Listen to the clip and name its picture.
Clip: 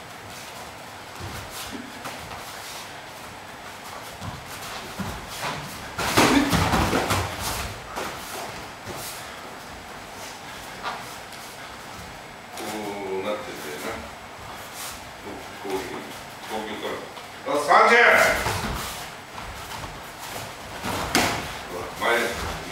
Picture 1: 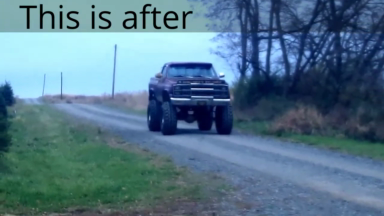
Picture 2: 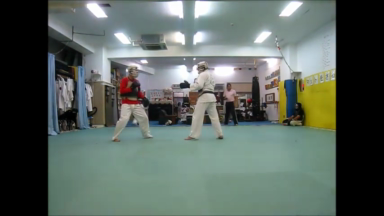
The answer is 2